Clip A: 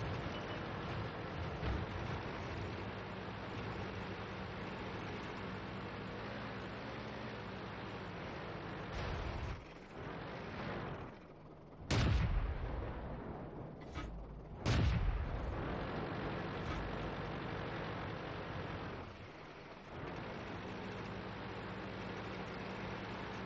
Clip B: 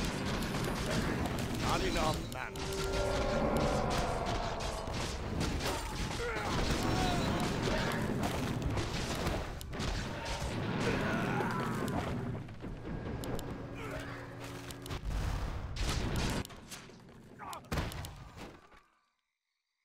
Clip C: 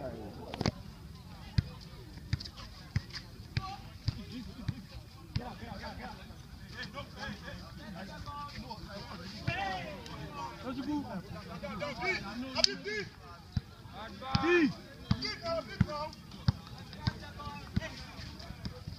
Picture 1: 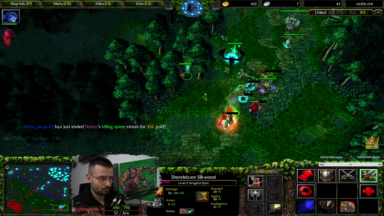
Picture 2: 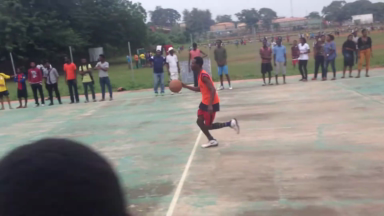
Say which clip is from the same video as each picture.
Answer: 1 B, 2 C